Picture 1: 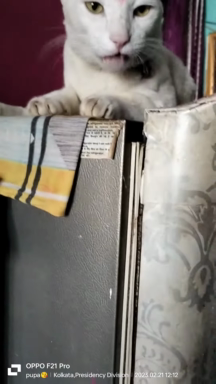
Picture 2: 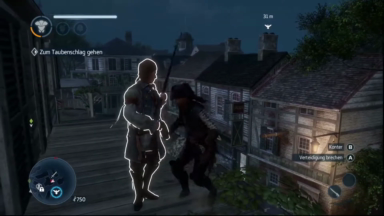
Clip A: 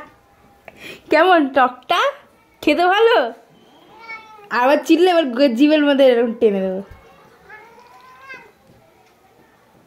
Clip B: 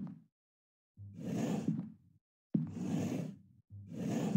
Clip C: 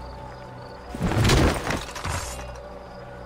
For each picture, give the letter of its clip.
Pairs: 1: A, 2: C